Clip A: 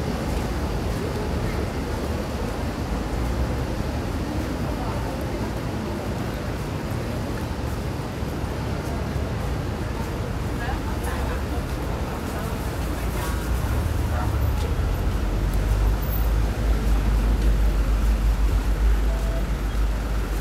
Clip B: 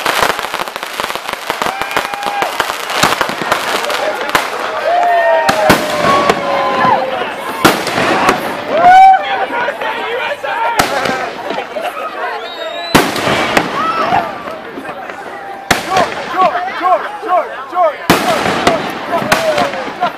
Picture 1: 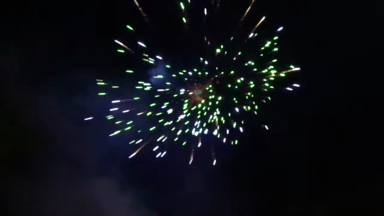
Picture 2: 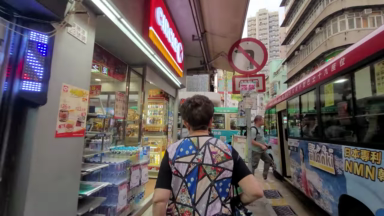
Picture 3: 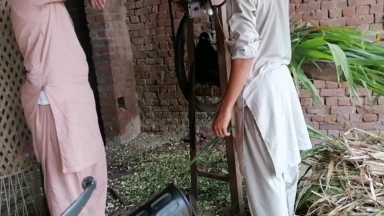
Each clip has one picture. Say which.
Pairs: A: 2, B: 1